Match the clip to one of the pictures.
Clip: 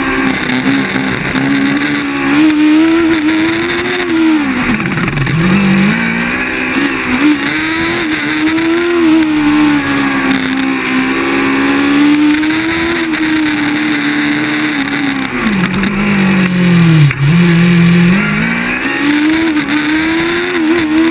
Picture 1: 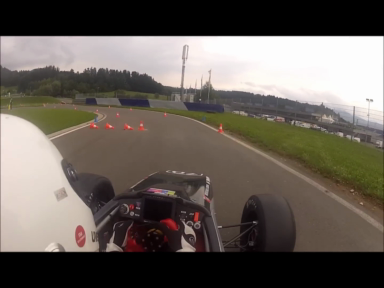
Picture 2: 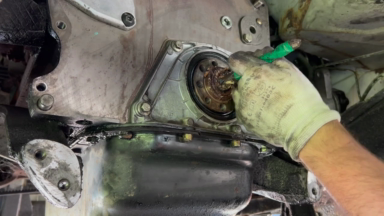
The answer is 1